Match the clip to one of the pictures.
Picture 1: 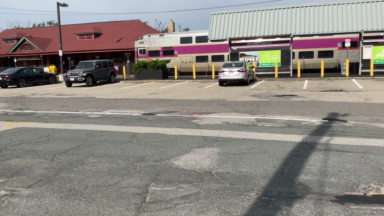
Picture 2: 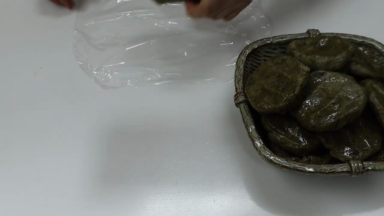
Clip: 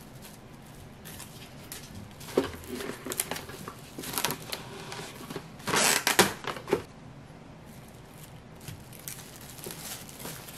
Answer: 2